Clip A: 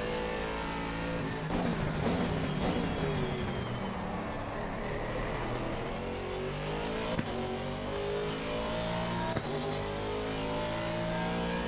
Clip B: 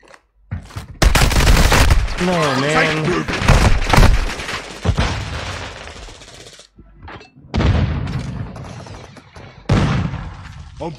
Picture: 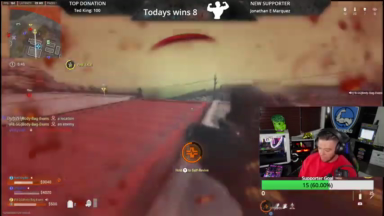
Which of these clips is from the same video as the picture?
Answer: B